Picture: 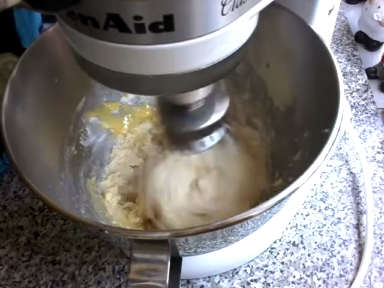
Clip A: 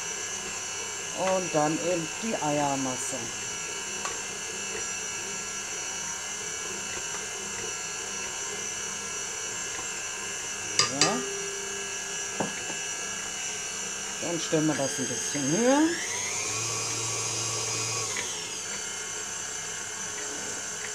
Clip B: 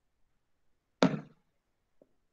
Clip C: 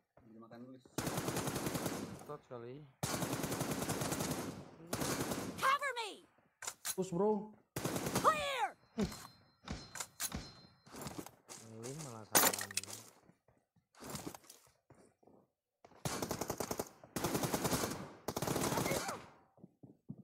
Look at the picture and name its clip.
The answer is A